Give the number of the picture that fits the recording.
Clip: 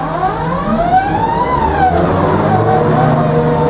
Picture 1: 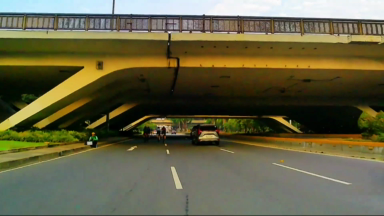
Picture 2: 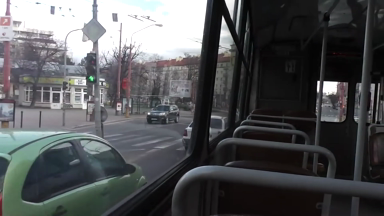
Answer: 2